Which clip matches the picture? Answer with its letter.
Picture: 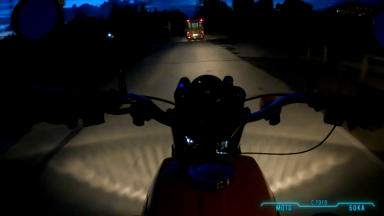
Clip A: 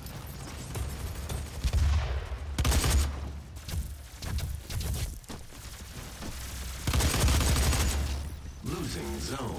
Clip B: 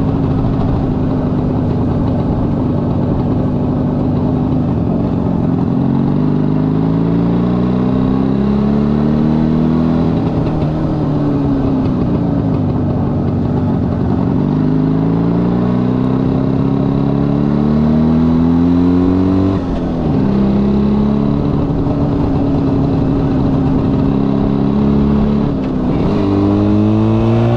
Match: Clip B